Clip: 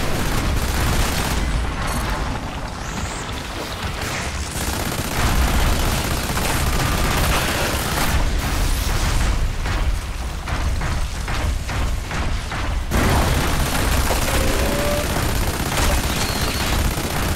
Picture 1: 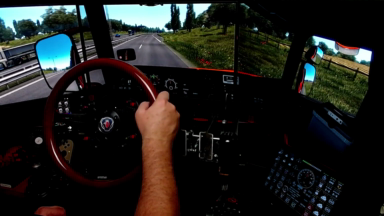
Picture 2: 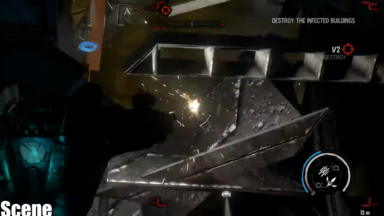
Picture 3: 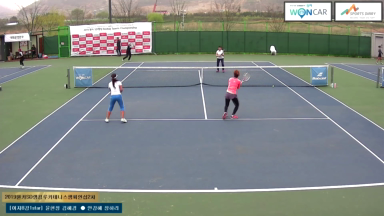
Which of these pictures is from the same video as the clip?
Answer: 2